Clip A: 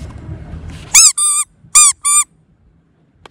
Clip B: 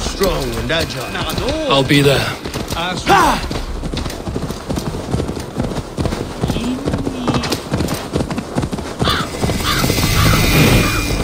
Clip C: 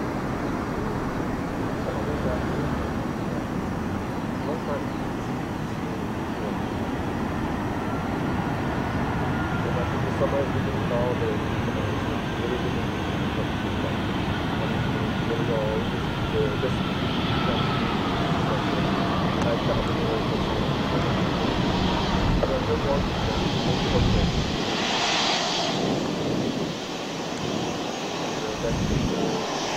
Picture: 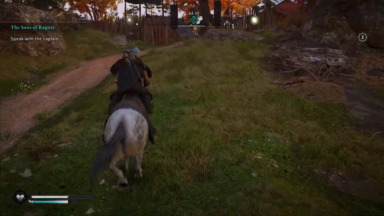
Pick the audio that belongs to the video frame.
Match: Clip B